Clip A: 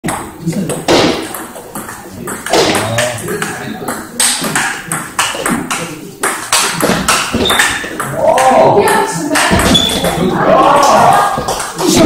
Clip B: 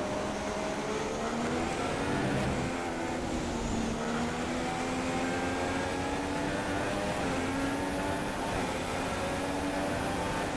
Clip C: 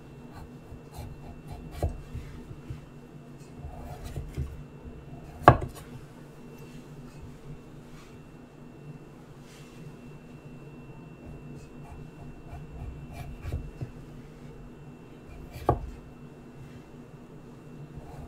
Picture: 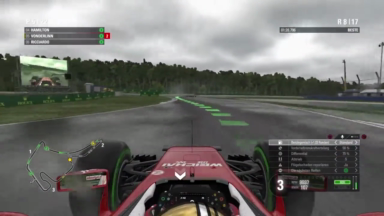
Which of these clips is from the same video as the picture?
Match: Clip B